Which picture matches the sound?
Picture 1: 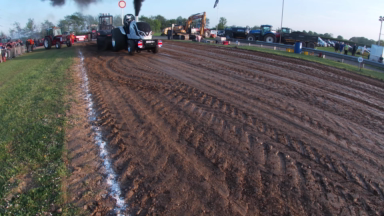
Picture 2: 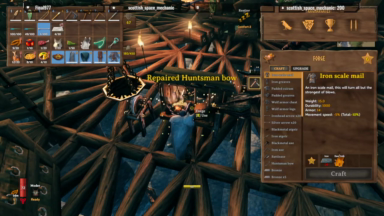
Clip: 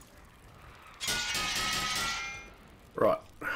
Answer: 2